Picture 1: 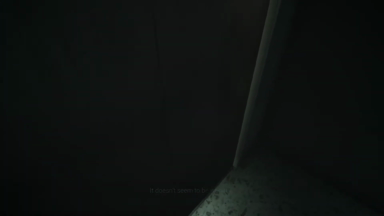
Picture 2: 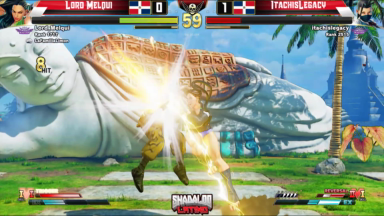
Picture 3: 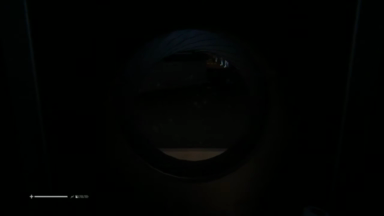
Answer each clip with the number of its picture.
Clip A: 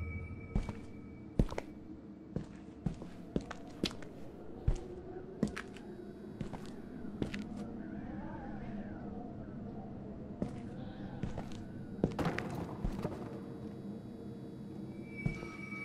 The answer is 1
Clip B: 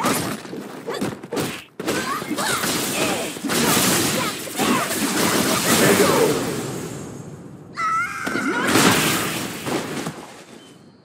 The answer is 2